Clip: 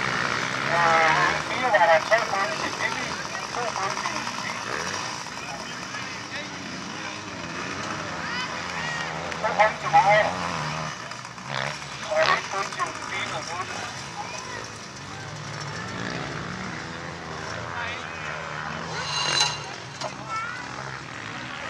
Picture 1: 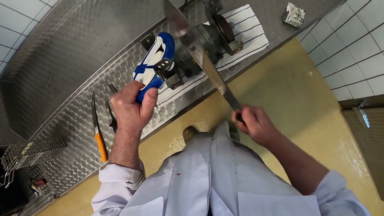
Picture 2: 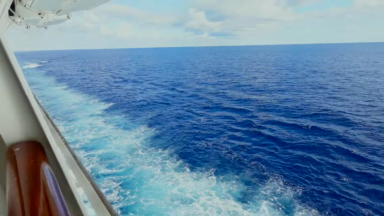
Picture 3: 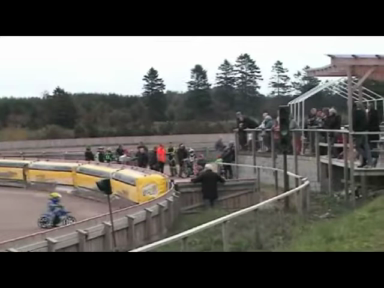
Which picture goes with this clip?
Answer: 3